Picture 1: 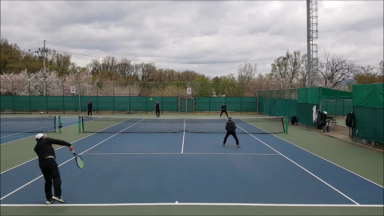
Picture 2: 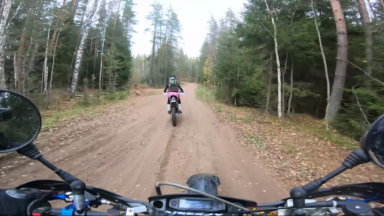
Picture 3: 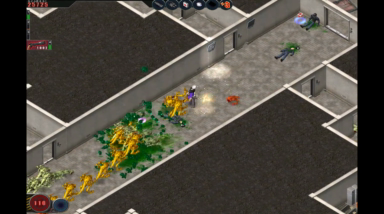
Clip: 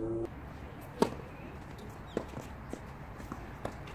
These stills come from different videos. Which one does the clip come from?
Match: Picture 1